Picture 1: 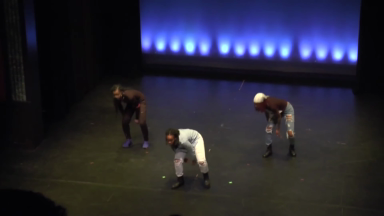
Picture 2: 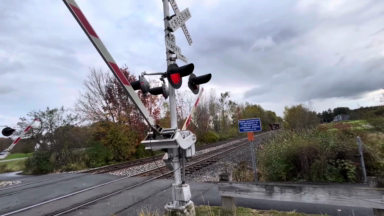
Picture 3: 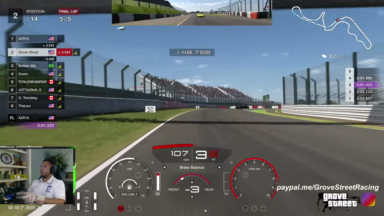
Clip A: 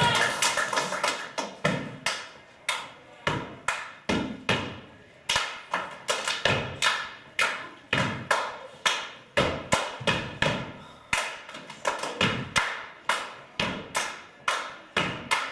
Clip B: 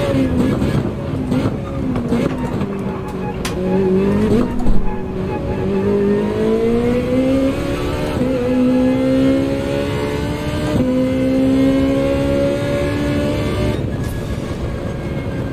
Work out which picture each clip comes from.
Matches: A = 1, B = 3